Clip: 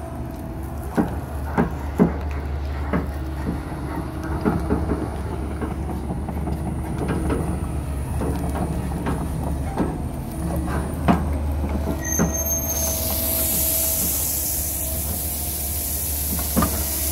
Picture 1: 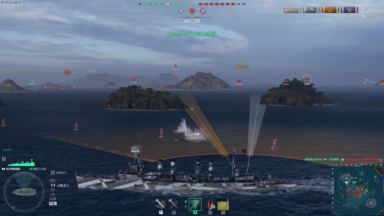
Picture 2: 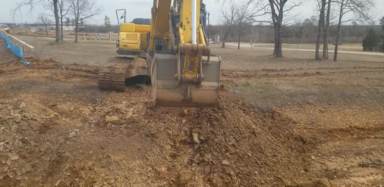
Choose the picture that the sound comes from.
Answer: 2